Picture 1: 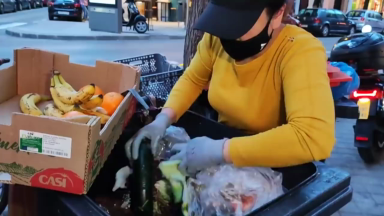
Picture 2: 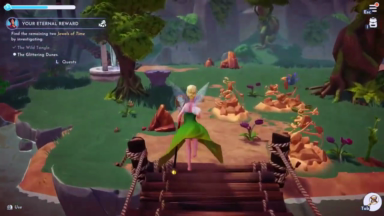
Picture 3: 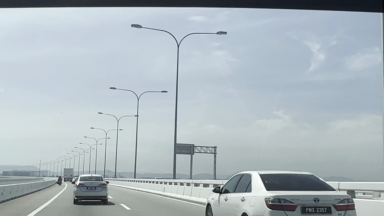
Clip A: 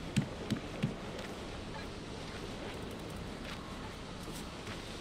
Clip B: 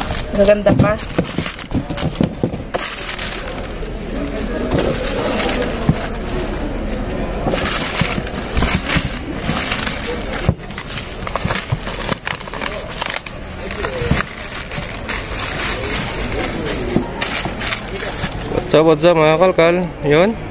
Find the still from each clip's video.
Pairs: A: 2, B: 1